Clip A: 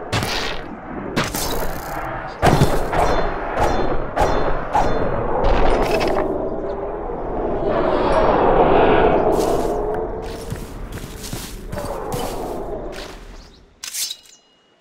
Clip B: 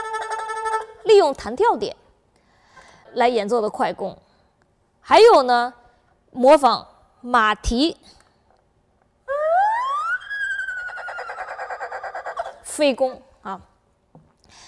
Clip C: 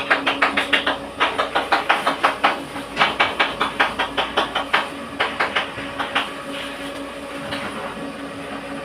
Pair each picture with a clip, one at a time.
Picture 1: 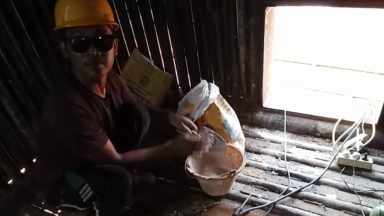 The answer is C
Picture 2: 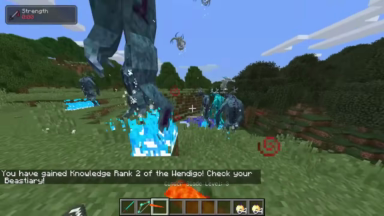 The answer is A